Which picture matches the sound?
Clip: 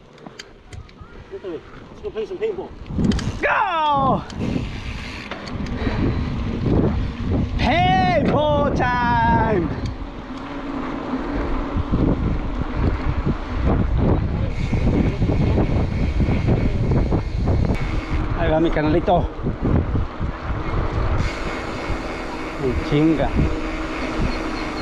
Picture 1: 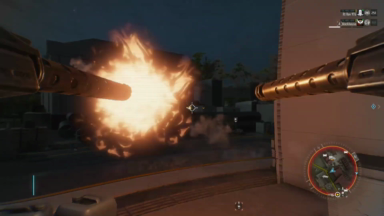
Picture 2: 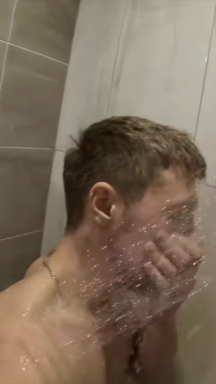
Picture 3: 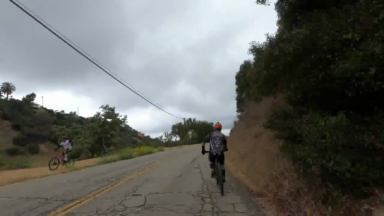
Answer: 3